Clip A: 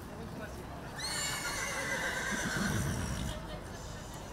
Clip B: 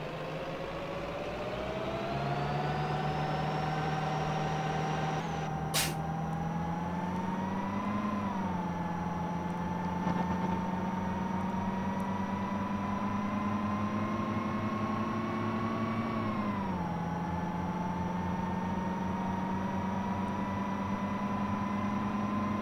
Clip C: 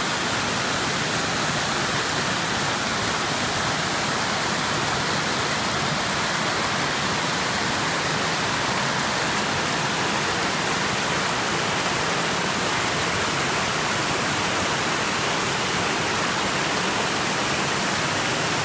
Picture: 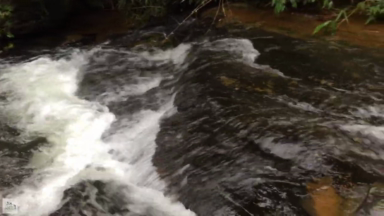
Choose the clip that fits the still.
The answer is C